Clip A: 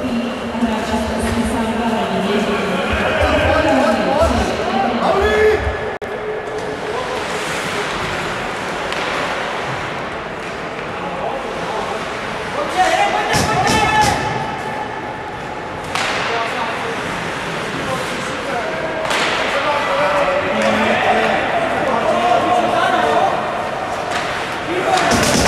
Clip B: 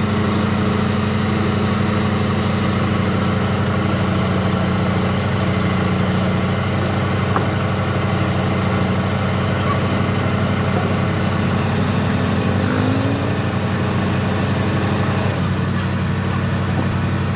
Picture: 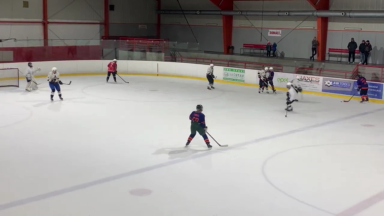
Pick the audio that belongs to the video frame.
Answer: A